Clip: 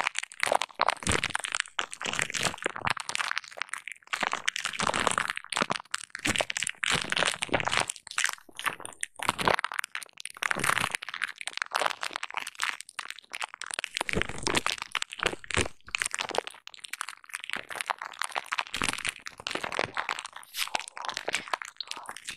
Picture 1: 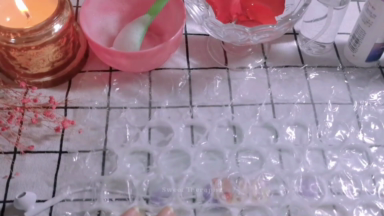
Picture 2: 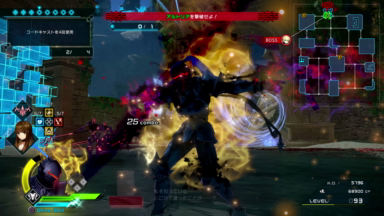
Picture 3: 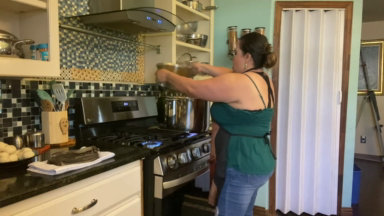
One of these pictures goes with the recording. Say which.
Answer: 1